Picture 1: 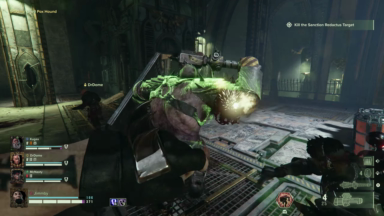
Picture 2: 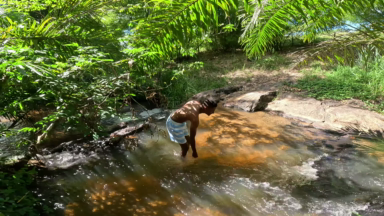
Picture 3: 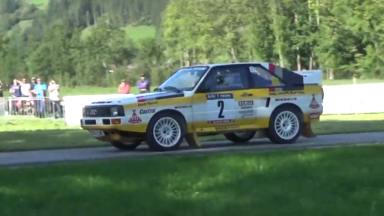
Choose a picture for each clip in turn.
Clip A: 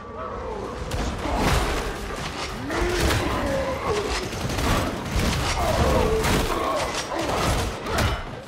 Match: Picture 1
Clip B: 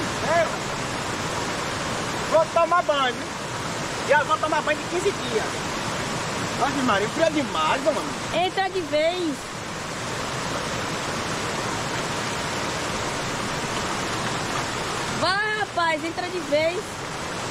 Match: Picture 2